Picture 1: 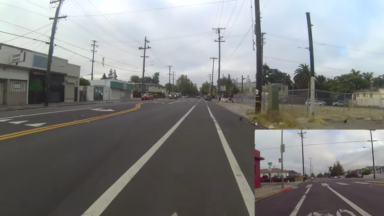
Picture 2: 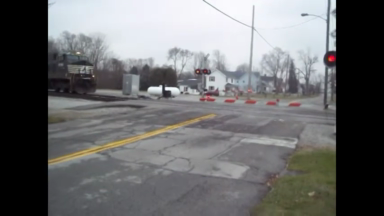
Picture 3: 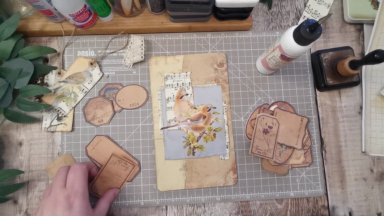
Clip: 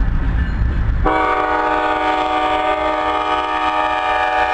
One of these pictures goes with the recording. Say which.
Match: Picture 2